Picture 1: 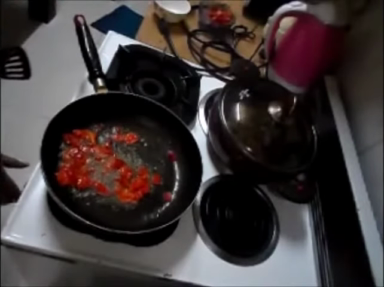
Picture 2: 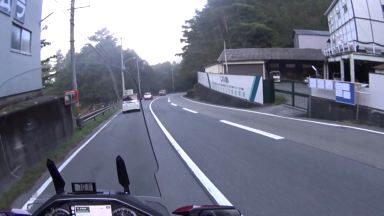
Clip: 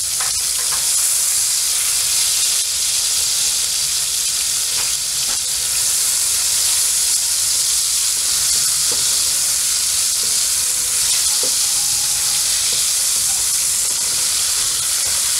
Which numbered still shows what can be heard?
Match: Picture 1